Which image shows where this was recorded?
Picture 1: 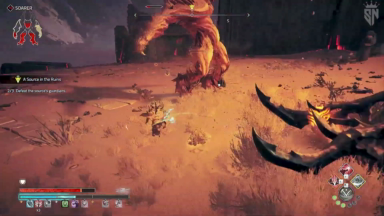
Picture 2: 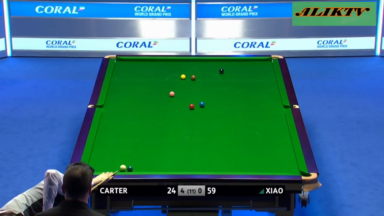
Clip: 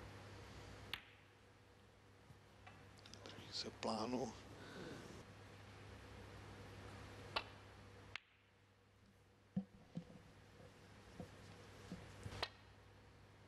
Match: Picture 2